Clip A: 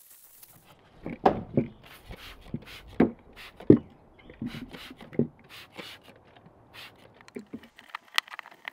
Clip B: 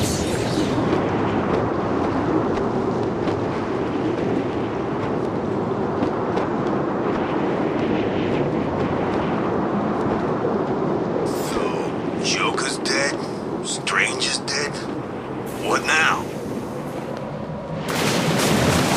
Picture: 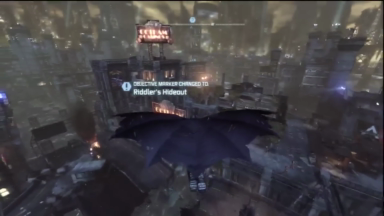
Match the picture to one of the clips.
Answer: B